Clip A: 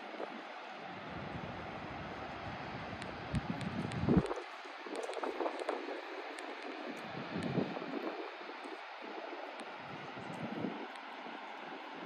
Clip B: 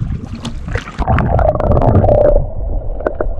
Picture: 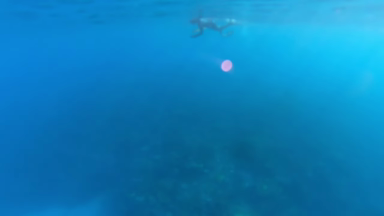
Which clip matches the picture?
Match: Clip B